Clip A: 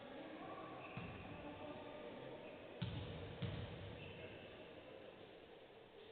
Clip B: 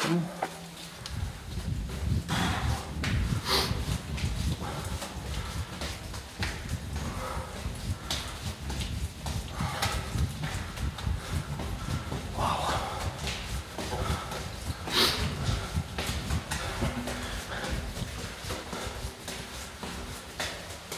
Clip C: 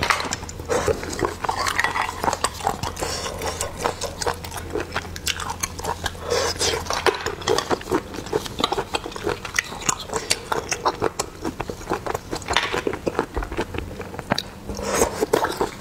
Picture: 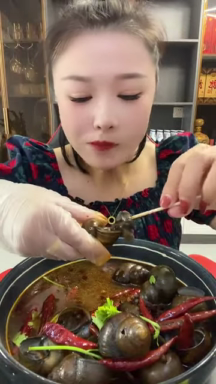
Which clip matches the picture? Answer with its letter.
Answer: C